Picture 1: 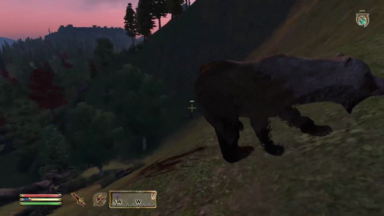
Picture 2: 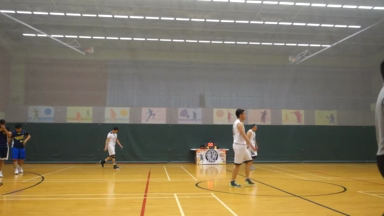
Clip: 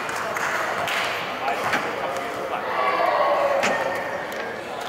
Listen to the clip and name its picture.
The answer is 2